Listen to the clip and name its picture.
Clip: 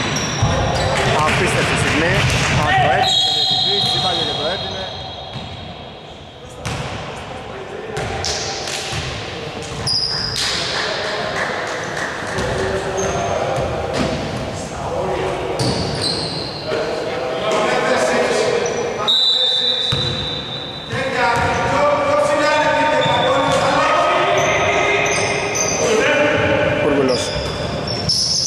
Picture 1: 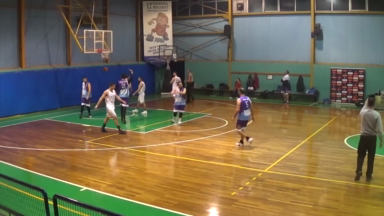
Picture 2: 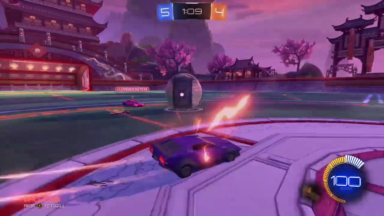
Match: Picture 1